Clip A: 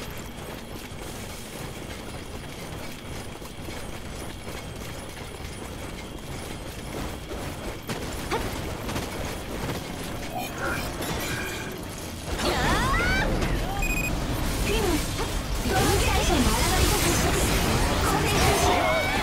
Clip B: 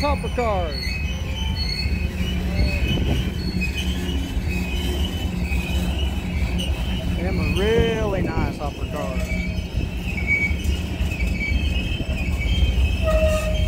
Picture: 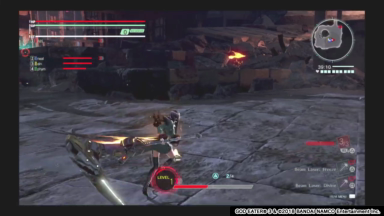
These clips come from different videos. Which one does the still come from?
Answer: A